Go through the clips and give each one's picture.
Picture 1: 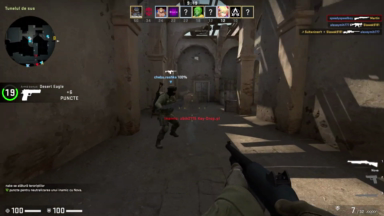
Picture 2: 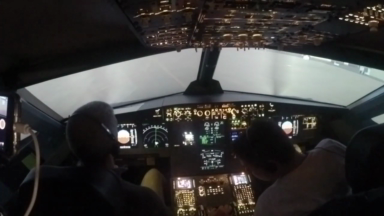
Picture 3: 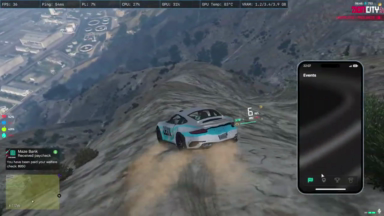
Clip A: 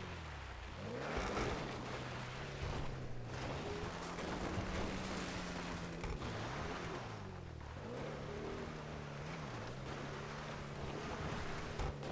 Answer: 3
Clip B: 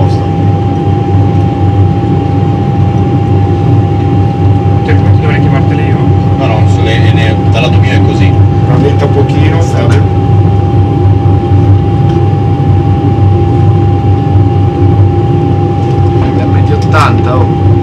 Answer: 2